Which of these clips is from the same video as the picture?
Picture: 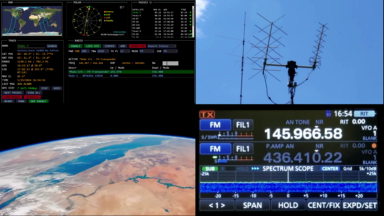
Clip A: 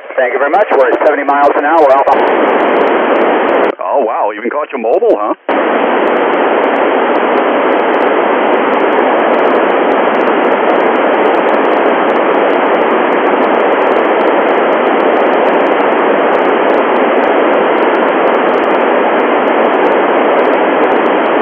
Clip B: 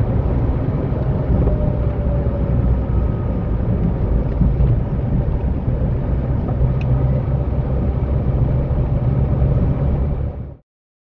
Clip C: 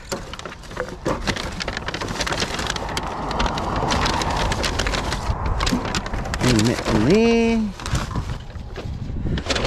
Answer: A